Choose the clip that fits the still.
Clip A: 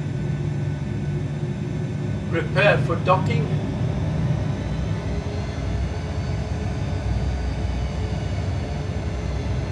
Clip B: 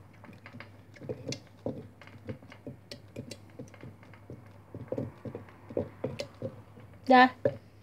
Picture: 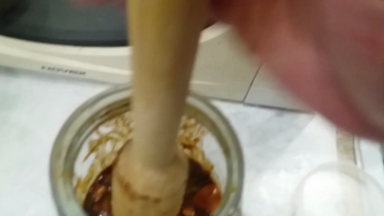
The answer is B